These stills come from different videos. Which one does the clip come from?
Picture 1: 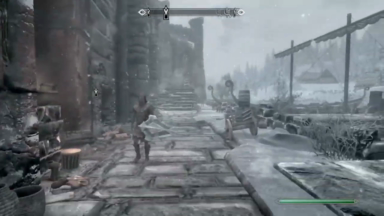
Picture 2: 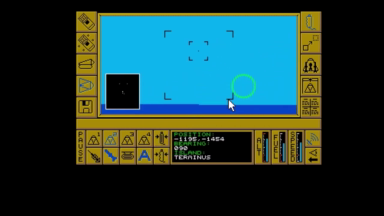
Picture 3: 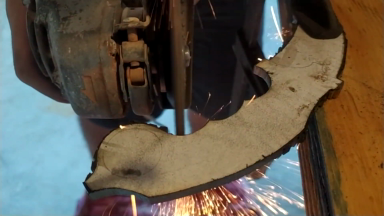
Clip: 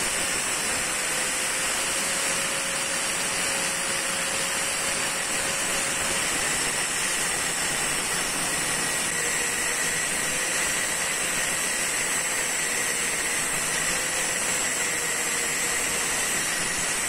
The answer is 3